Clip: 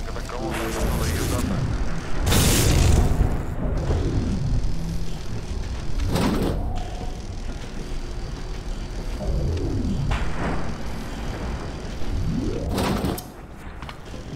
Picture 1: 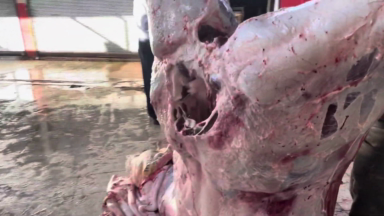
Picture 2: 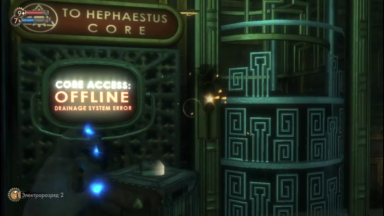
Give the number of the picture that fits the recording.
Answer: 2